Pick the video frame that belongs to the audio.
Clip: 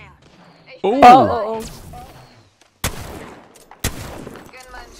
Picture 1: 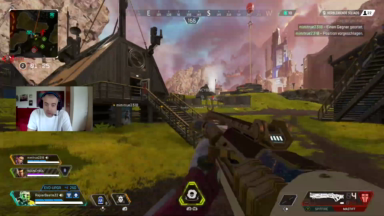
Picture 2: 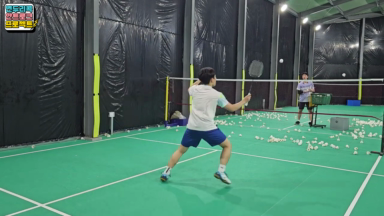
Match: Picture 1